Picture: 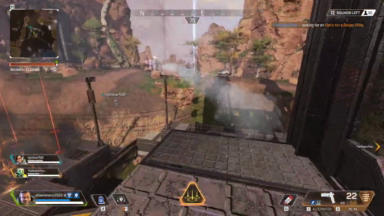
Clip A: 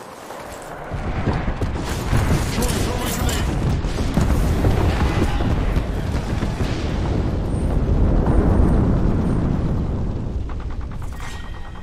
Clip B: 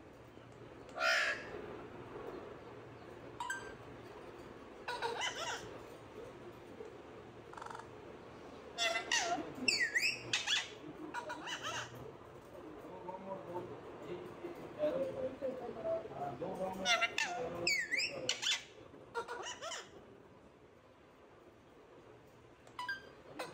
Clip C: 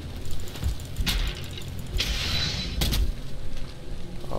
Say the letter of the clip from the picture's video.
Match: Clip A